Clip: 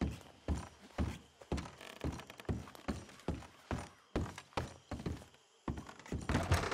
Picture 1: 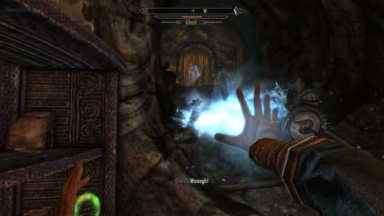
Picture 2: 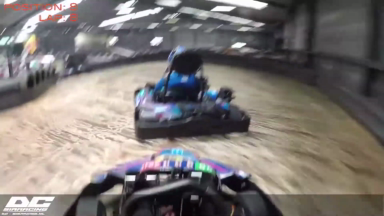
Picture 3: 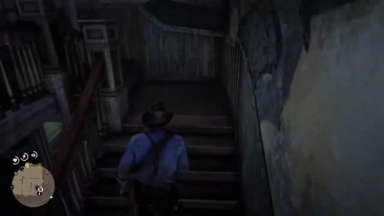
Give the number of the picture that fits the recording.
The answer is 3